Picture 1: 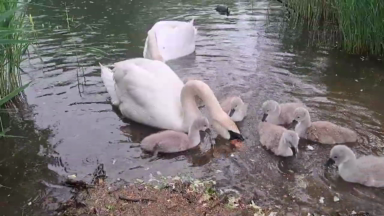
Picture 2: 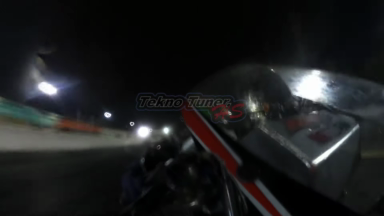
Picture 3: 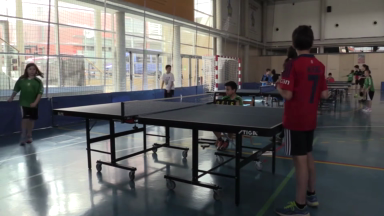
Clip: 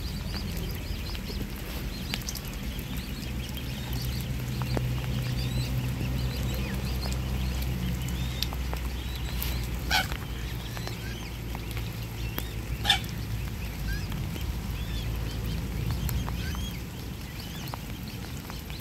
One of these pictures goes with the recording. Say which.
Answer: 1